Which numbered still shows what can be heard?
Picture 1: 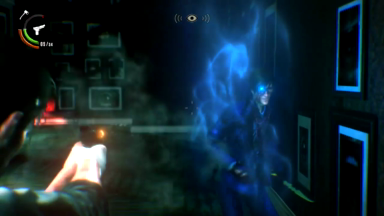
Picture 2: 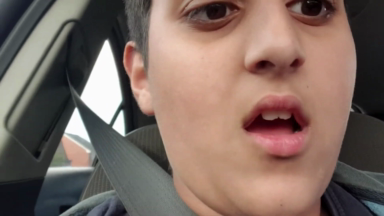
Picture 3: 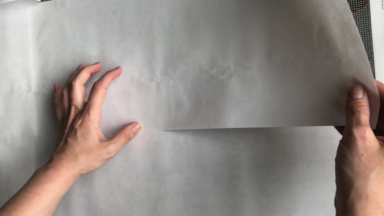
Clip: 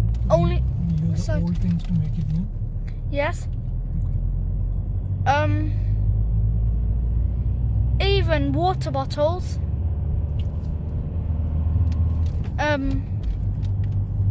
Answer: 2